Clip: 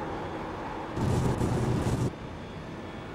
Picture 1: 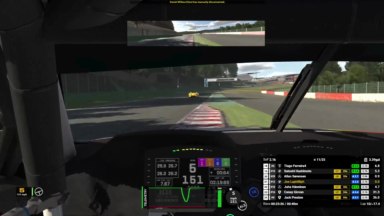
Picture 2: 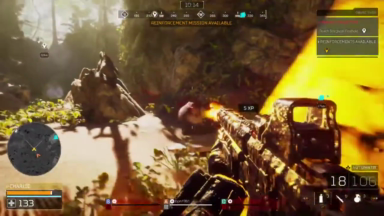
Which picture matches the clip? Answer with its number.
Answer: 1